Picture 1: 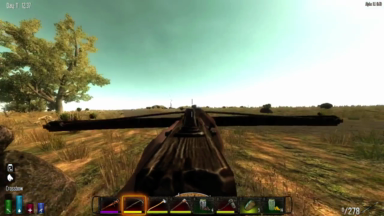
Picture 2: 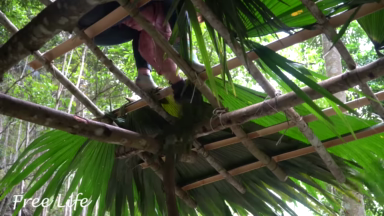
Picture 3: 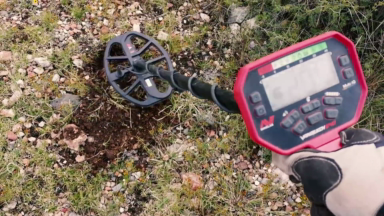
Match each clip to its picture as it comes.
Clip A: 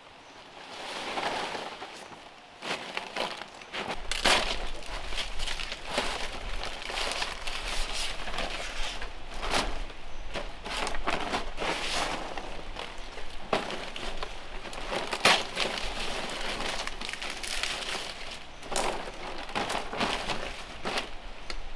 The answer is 2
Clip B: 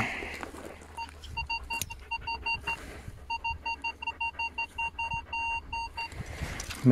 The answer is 3